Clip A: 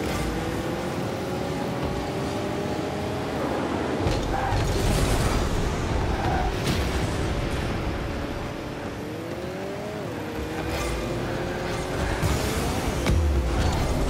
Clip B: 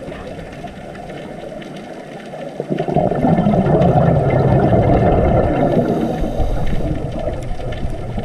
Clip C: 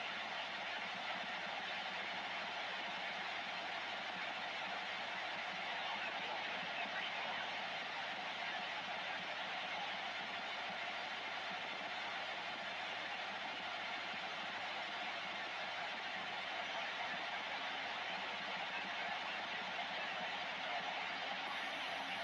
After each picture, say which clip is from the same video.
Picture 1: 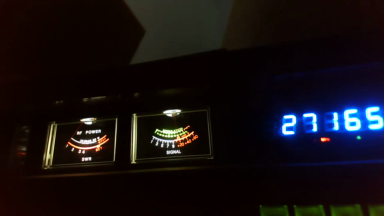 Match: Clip C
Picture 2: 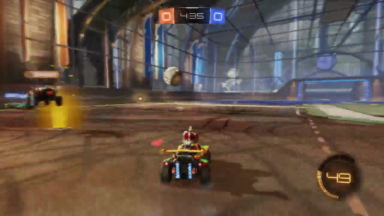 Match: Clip A